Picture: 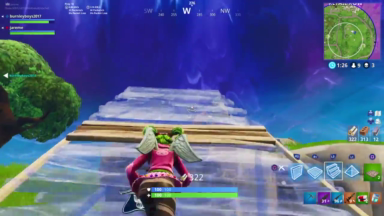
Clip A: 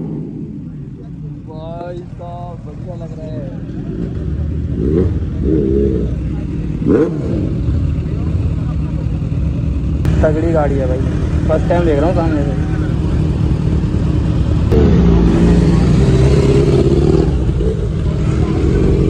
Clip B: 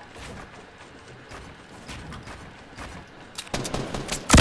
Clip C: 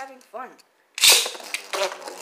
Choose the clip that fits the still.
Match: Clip B